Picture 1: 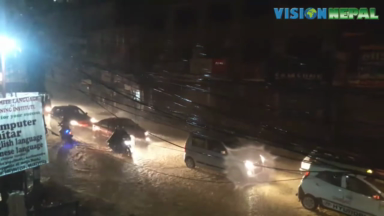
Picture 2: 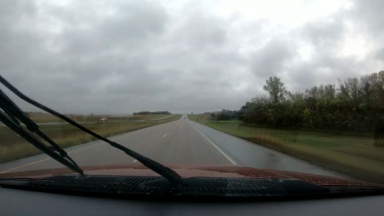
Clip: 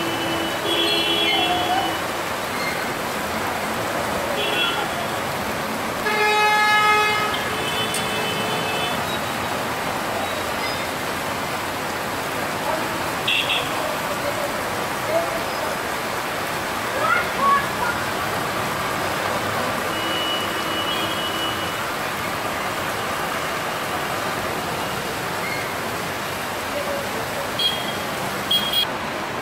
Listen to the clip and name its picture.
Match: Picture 1